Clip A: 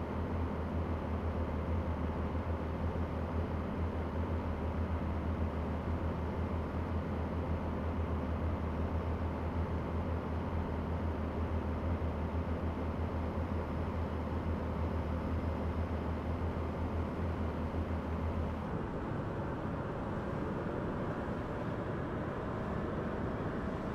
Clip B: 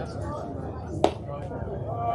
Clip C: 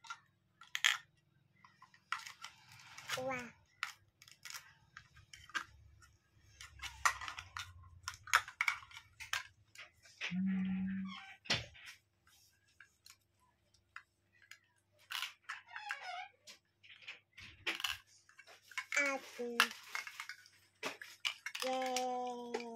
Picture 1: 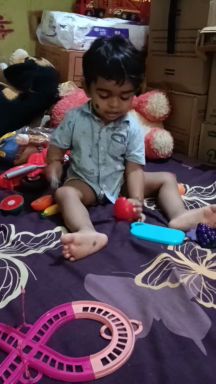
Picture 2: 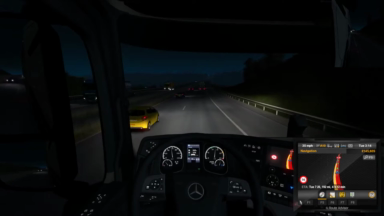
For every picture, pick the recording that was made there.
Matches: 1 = C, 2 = A